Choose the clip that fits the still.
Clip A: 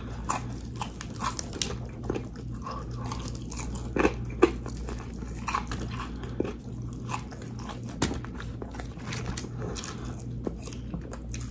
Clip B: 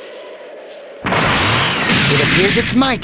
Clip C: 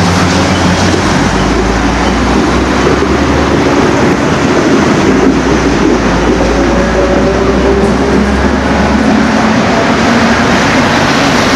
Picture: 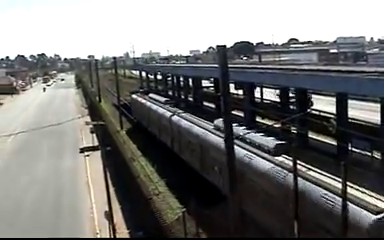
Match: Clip C